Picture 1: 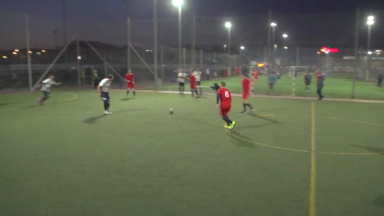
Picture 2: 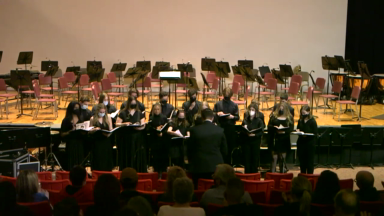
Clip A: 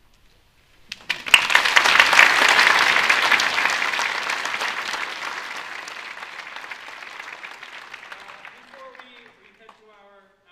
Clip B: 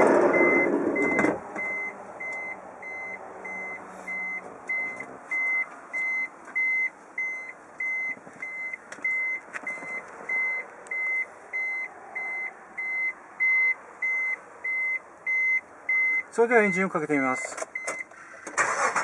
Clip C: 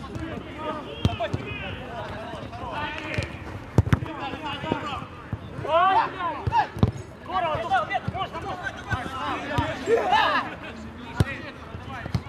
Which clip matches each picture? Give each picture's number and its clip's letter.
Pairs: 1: C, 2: A